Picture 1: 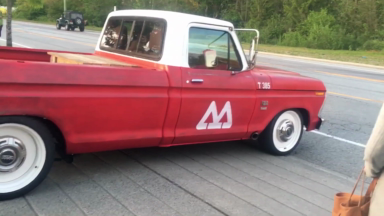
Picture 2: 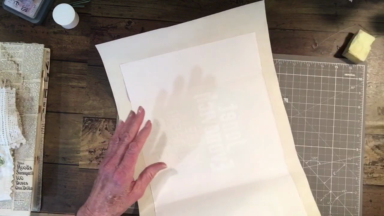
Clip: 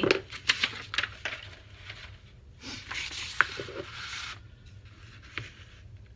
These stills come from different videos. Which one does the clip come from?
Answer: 2